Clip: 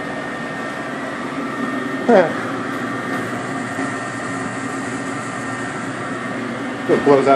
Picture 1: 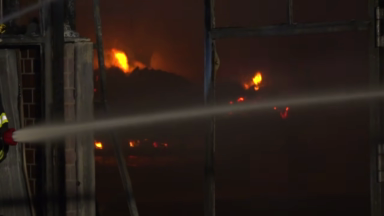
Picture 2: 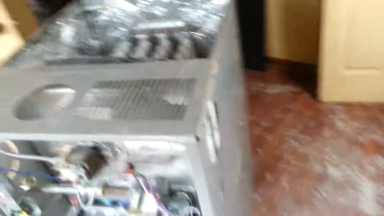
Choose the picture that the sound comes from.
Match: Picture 2